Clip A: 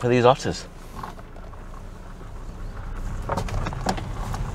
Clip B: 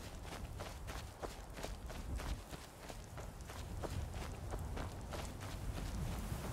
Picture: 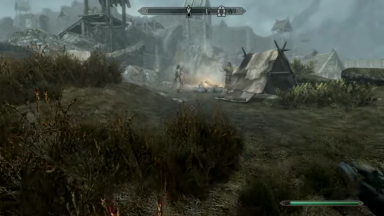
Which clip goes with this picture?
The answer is B